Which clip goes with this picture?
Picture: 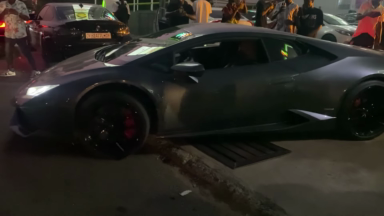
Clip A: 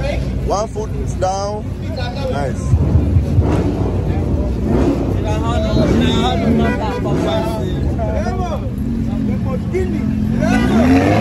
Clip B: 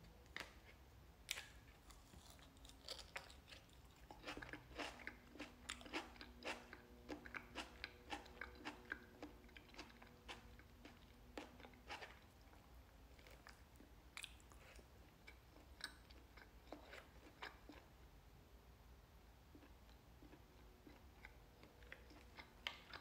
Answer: A